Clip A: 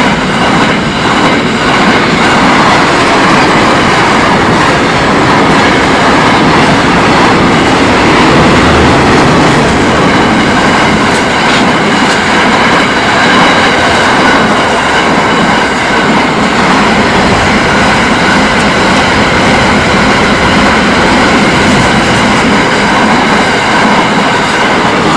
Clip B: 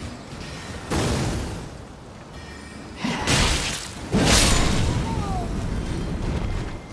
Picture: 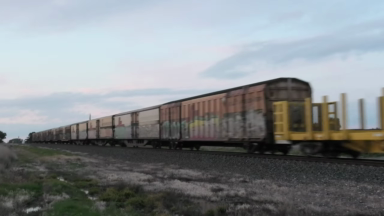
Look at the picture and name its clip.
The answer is A